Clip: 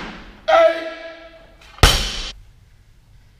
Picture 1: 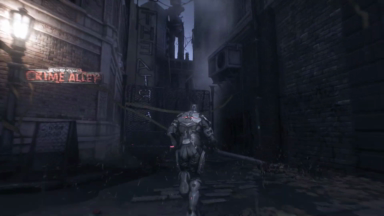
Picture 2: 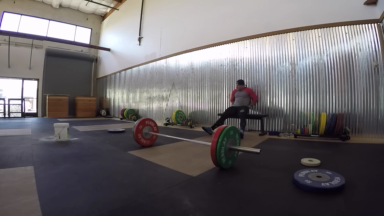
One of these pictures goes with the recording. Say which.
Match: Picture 2